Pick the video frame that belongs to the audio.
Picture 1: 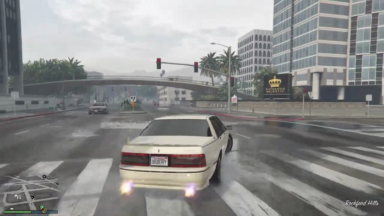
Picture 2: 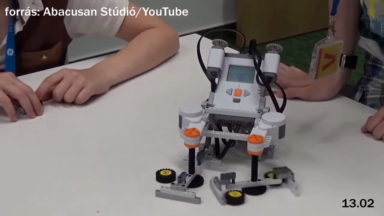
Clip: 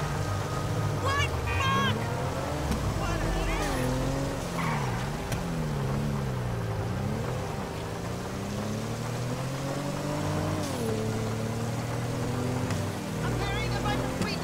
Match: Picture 1